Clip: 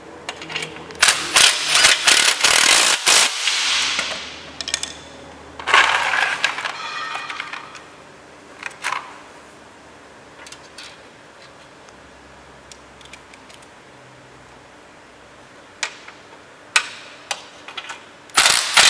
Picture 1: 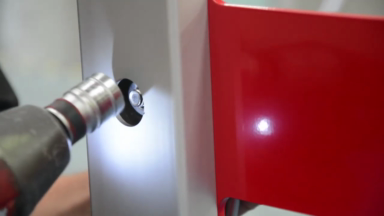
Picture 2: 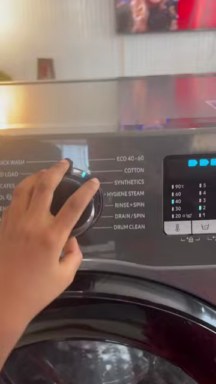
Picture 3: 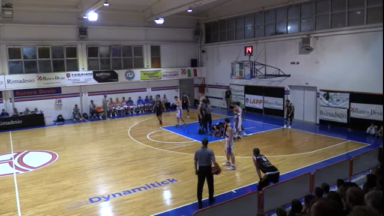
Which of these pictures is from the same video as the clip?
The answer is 1